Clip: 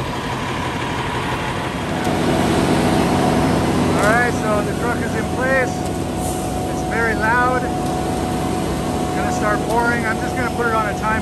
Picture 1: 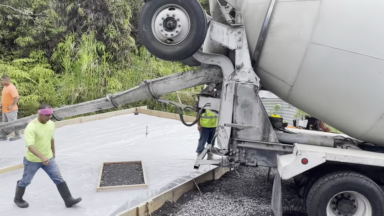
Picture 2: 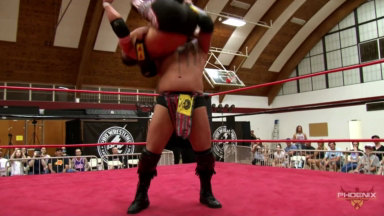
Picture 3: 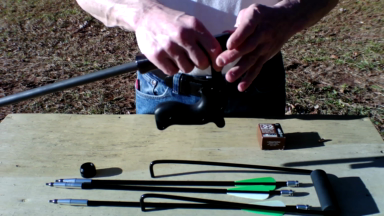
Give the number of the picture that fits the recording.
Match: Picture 1